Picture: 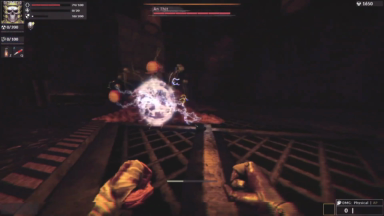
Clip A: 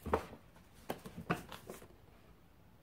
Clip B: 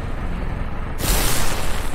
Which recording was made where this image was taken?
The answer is B